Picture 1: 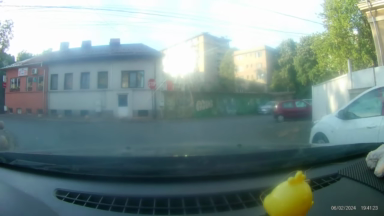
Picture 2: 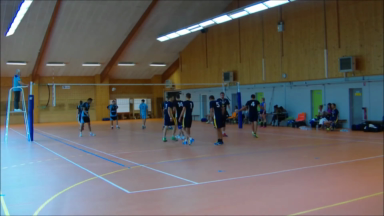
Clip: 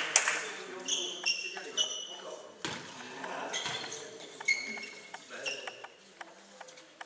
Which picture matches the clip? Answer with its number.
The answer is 2